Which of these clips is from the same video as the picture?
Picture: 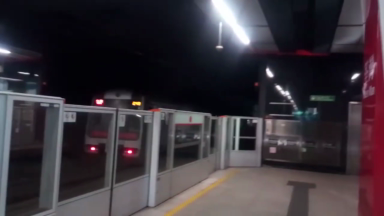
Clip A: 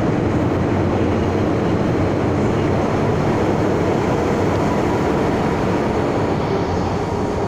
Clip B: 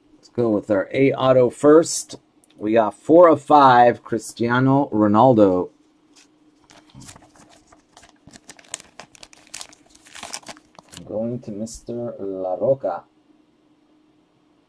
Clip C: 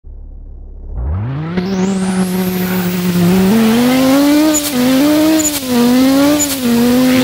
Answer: A